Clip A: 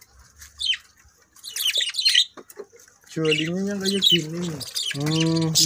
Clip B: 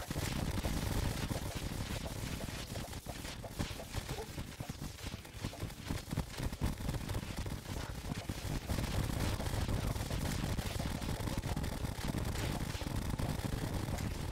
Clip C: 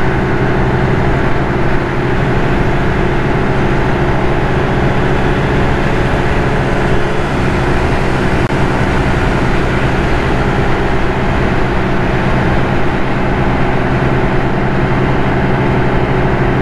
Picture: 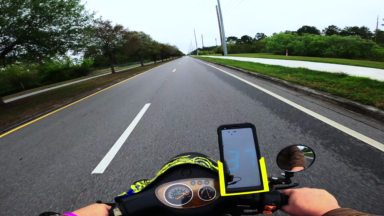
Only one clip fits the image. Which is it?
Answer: C